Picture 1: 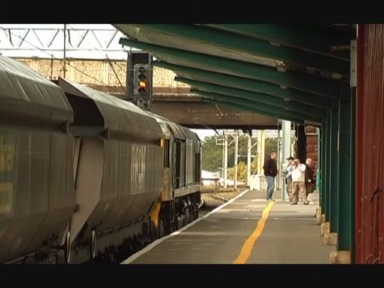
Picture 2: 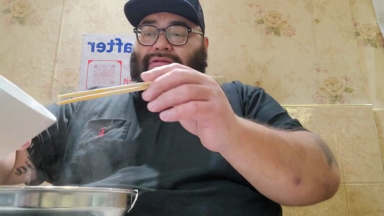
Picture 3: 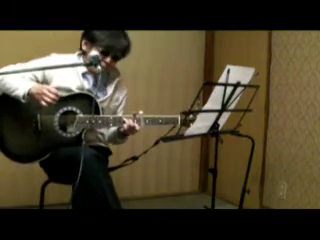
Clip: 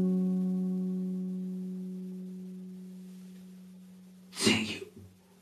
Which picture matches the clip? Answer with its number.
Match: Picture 3